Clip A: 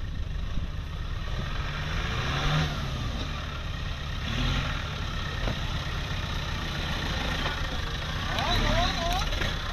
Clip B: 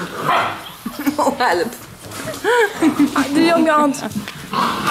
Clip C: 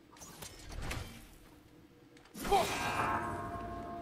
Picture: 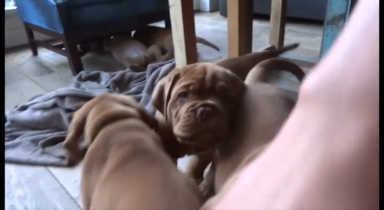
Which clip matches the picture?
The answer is B